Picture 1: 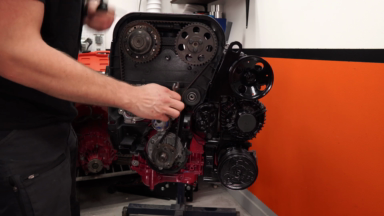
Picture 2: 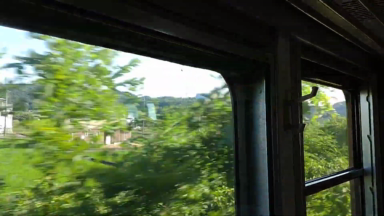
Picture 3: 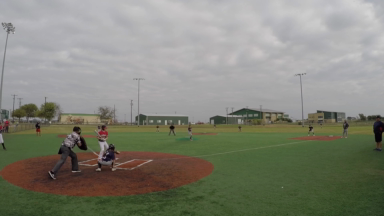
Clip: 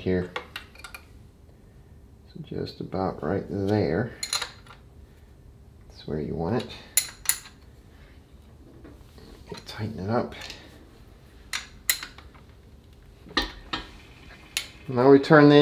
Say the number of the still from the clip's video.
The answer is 1